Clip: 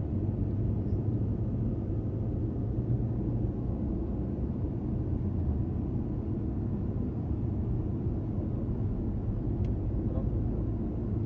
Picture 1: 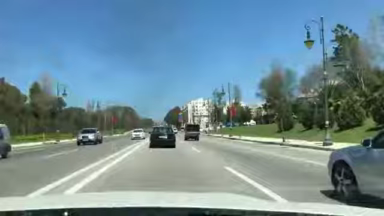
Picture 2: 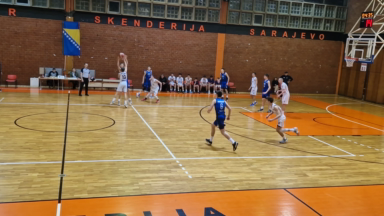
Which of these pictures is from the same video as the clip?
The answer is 1